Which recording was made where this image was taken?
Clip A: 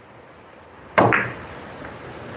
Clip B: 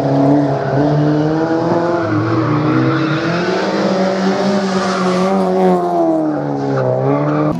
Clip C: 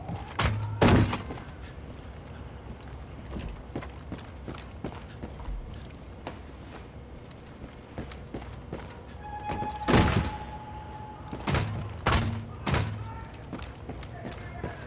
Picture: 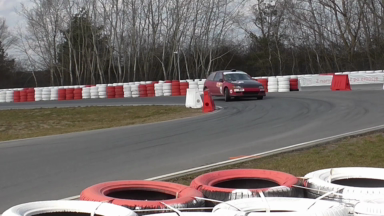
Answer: B